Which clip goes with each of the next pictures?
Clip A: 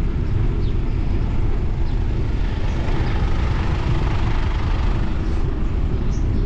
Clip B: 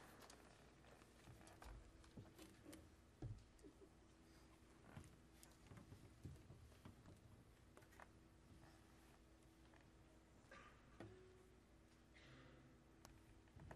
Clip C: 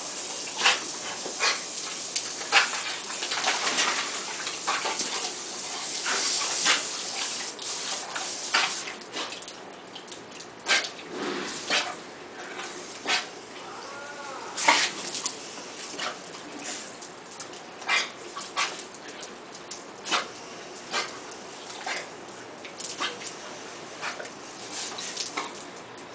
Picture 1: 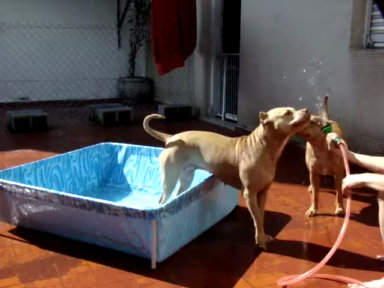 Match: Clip C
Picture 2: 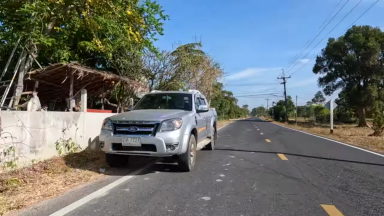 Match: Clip A